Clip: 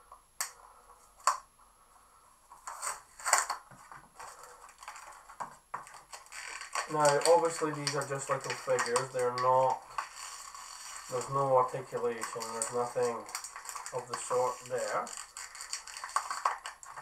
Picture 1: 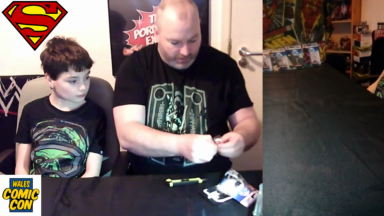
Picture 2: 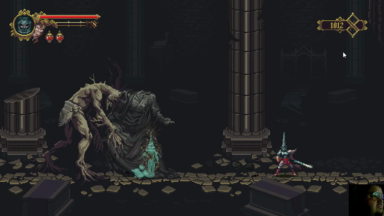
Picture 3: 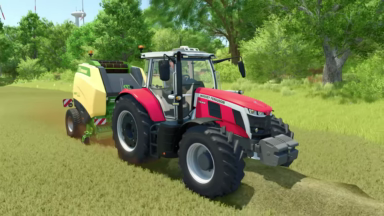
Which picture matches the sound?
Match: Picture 1